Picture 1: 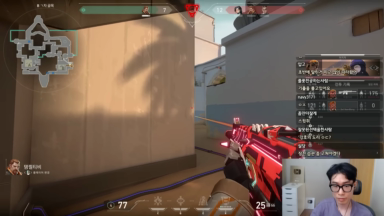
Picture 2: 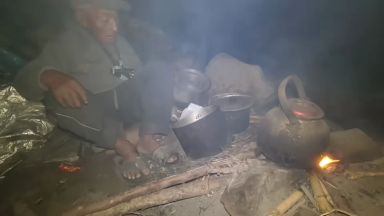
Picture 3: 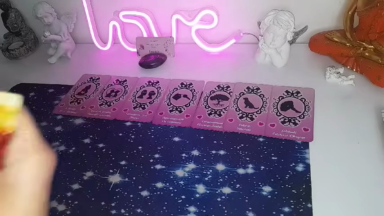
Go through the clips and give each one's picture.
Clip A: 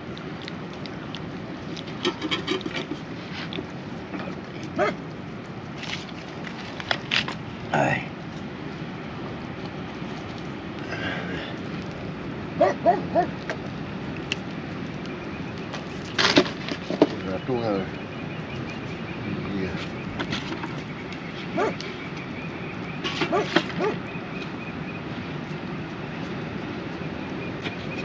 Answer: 2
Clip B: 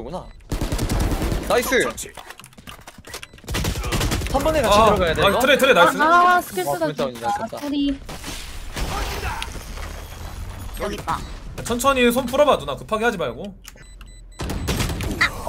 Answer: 1